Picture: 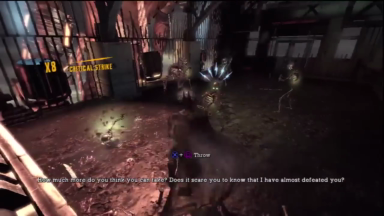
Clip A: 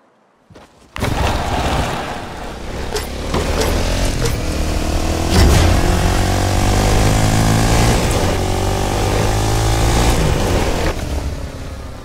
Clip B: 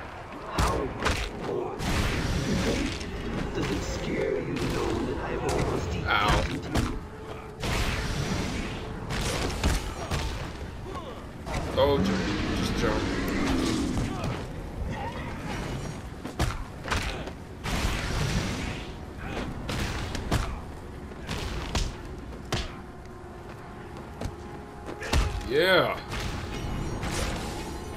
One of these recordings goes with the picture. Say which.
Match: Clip B